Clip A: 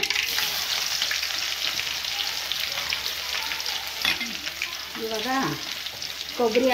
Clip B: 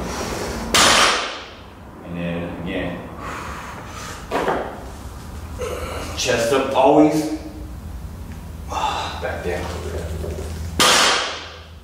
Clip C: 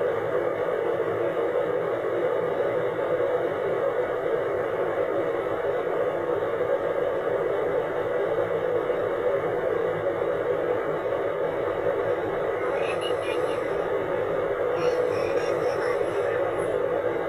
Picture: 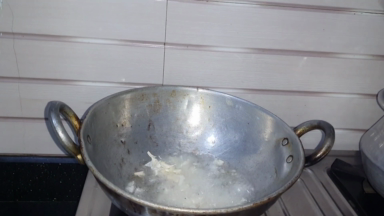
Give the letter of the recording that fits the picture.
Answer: A